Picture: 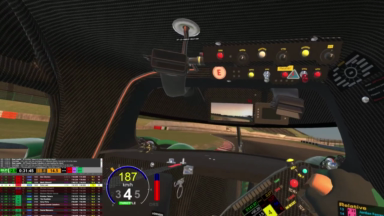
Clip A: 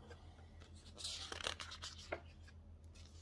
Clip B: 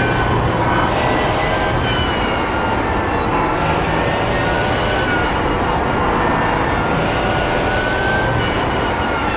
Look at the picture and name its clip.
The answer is B